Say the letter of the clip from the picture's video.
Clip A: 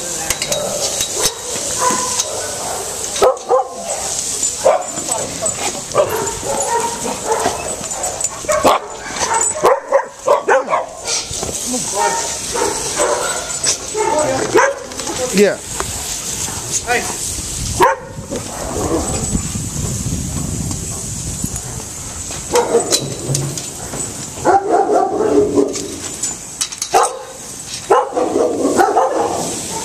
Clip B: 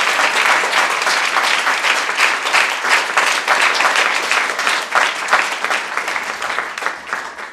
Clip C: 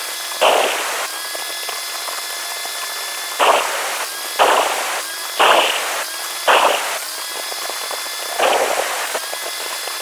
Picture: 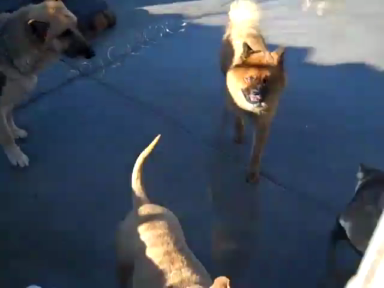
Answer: A